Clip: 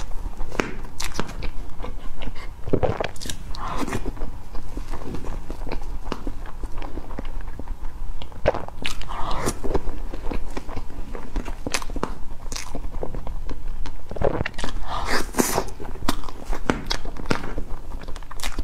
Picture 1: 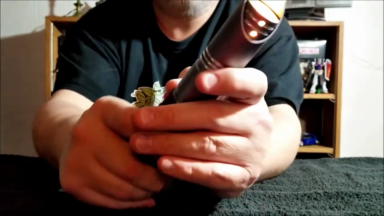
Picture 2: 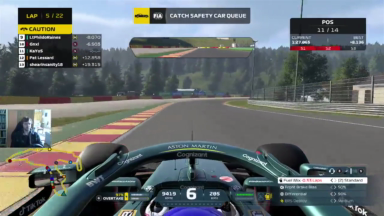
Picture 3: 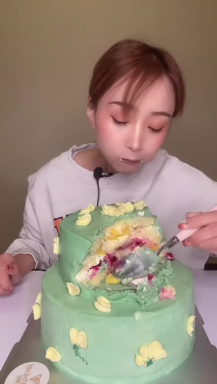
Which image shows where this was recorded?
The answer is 3